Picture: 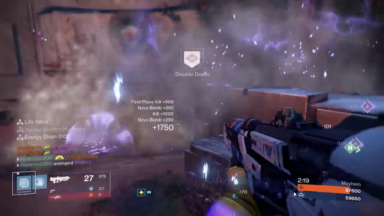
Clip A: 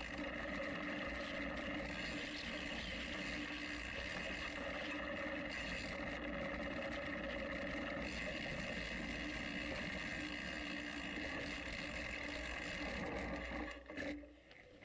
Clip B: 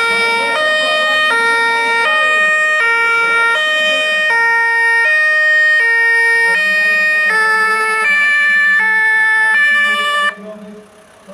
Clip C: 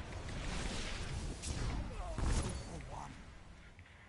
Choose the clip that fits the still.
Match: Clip C